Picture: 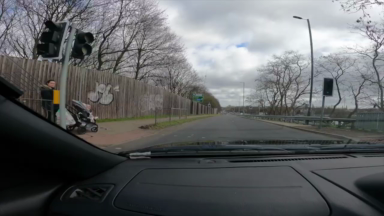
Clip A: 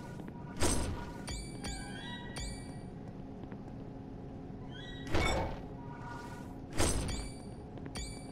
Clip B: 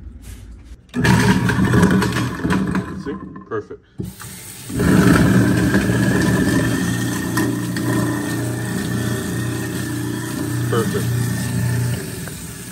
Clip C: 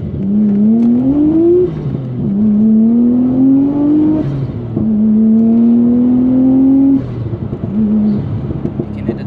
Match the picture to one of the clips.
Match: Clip C